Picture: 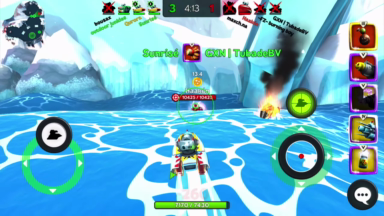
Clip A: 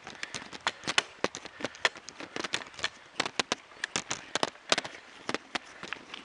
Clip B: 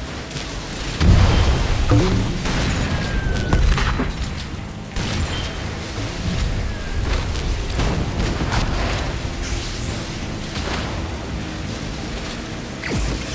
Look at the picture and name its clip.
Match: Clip B